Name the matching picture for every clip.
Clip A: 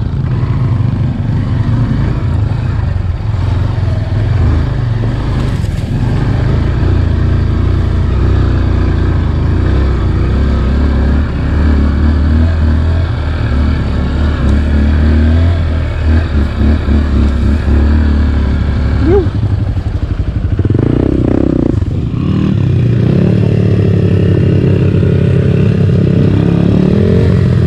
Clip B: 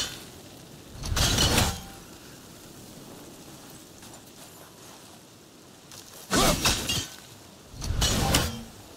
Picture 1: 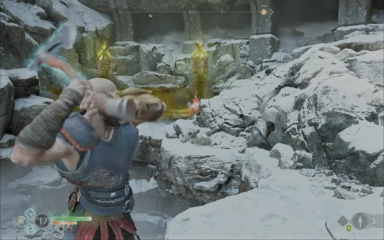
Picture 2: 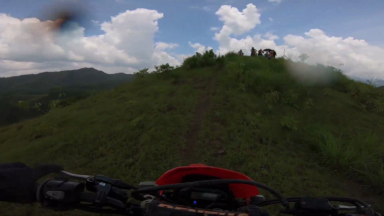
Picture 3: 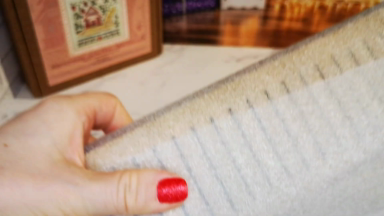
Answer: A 2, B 1